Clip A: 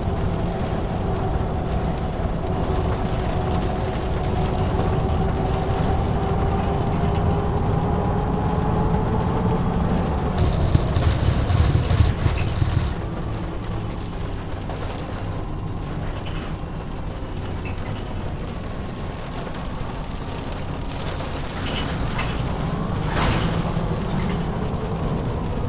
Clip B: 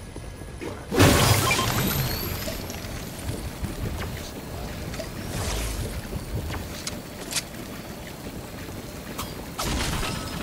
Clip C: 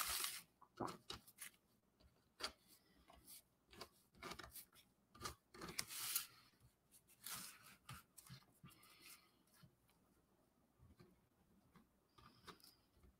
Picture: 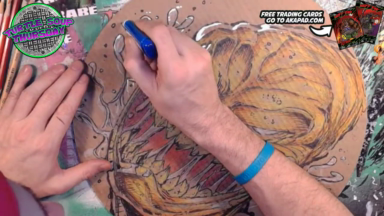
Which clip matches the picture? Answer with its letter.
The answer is C